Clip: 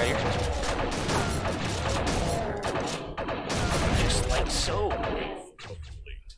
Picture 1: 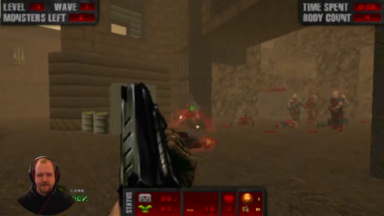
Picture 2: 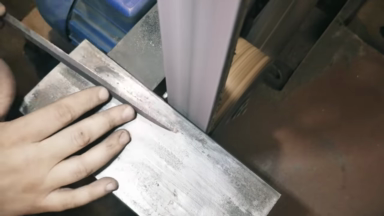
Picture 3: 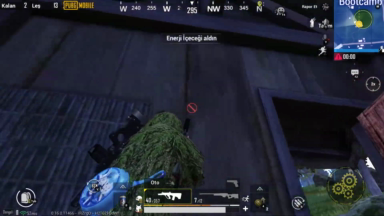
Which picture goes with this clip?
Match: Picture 1